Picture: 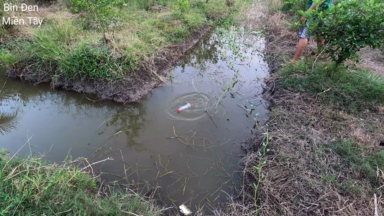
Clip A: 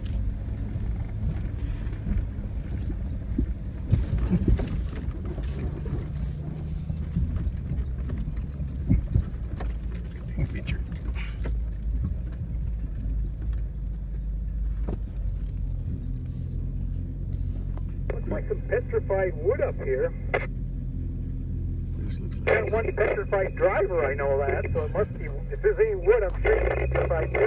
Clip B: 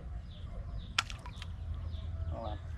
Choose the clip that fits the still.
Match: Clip B